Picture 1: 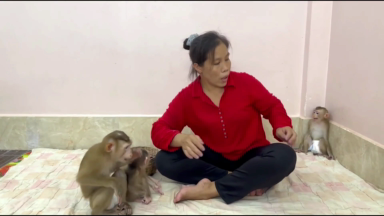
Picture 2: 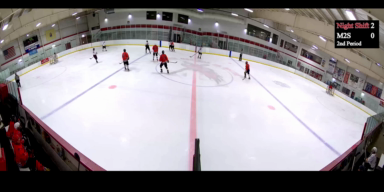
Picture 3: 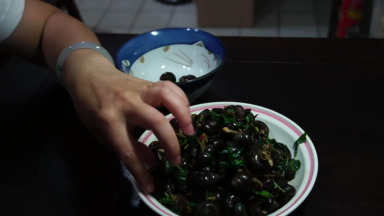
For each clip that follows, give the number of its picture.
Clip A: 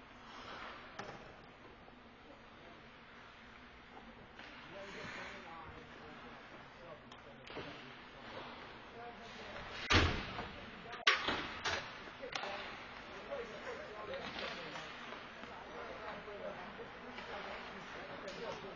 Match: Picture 2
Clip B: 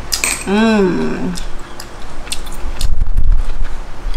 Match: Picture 3